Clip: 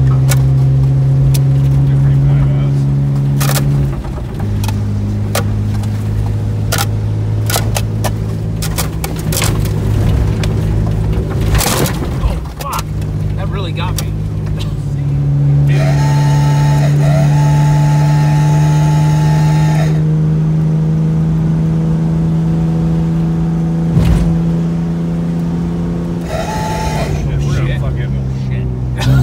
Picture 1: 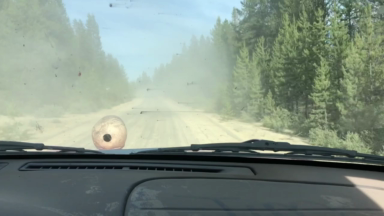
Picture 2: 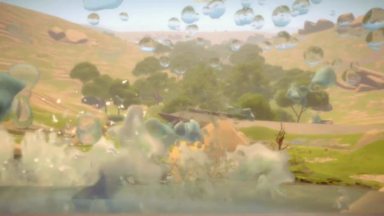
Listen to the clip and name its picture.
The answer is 1